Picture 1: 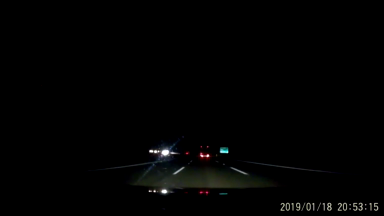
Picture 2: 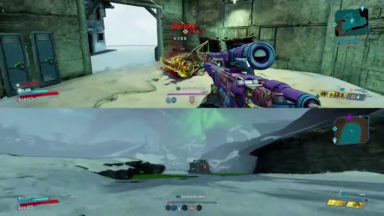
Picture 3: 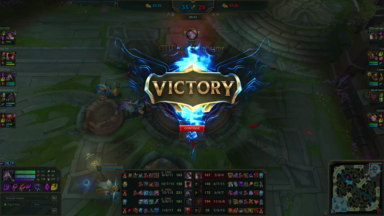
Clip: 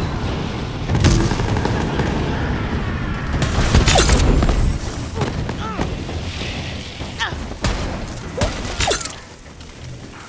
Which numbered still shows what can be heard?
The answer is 2